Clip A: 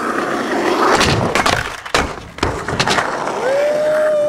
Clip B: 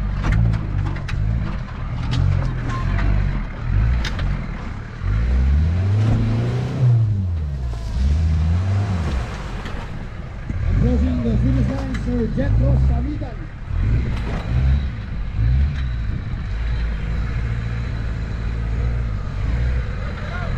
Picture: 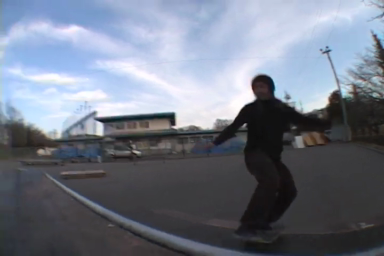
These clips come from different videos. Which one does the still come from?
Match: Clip A